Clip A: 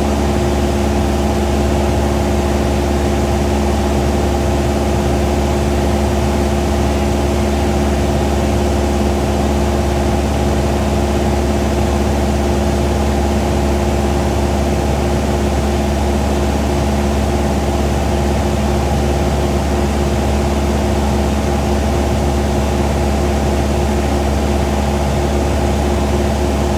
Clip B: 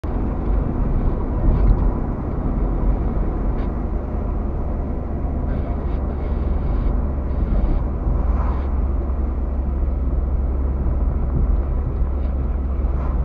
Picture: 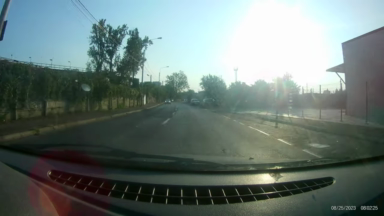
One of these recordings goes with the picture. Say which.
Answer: B